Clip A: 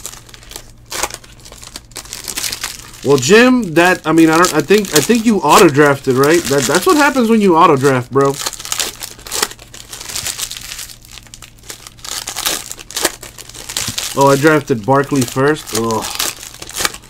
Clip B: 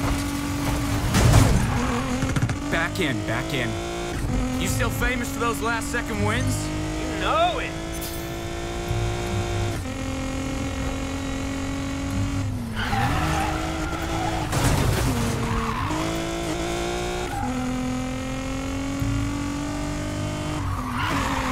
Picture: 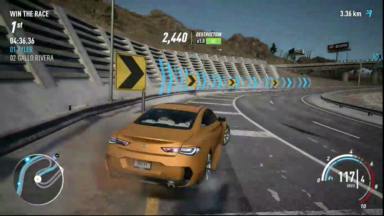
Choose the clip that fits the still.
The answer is B